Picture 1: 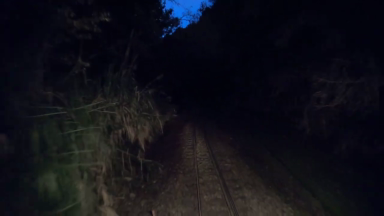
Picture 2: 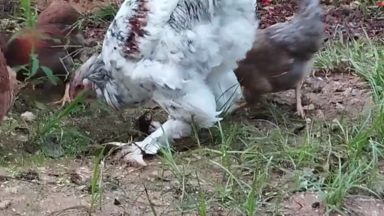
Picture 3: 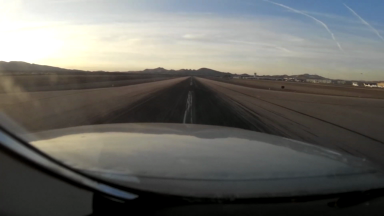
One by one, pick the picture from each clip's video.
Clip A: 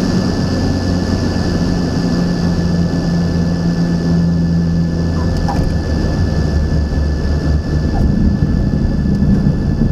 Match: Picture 3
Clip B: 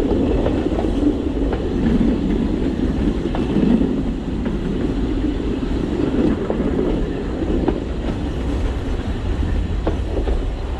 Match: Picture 1